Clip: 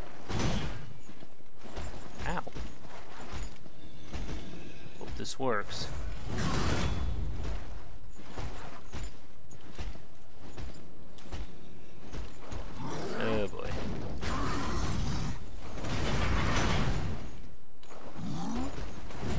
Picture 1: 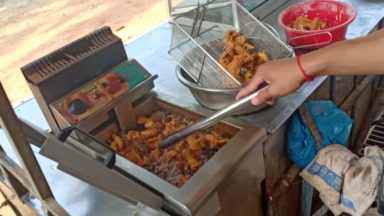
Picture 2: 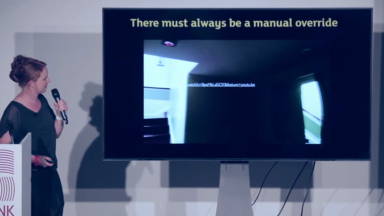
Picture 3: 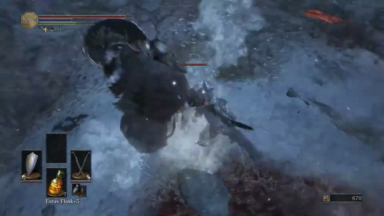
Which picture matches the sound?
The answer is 3